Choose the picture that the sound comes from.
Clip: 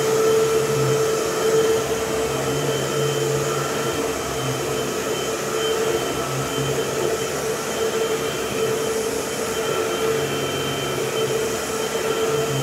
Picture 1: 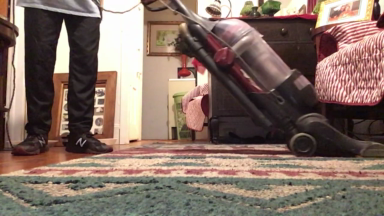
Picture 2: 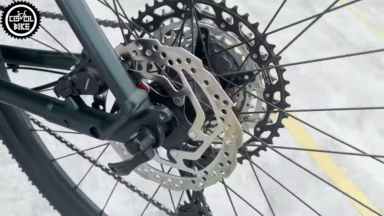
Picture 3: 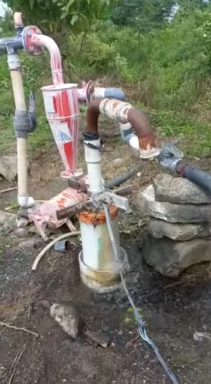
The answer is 1